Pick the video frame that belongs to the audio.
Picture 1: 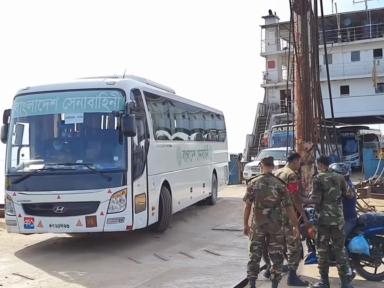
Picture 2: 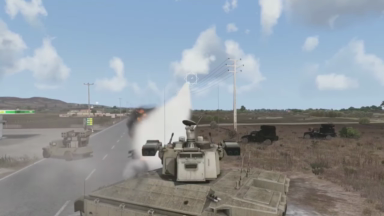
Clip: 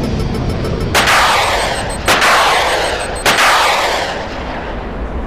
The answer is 2